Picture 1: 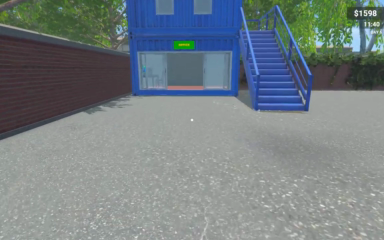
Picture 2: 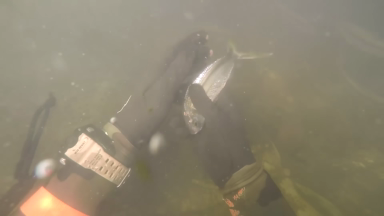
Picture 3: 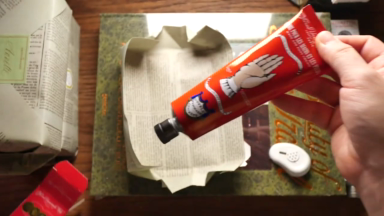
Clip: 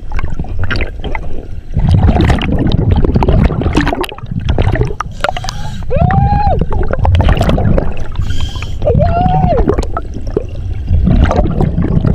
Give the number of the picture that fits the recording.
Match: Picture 2